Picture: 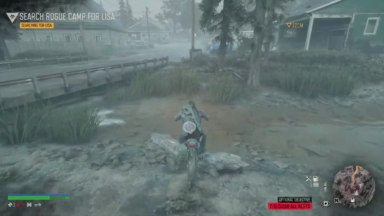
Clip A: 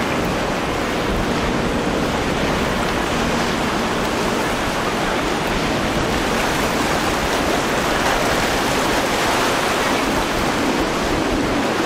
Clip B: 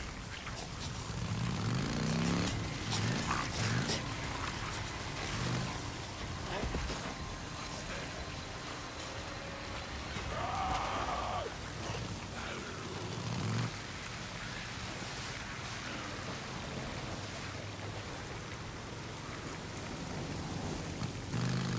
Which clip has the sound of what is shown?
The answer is B